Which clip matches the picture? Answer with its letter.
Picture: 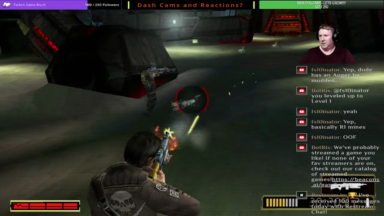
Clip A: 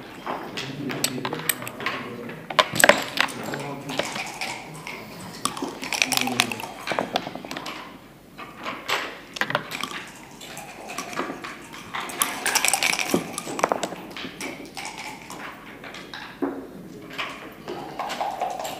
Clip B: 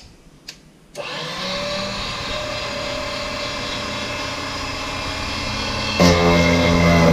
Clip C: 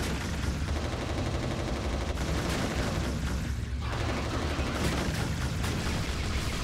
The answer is C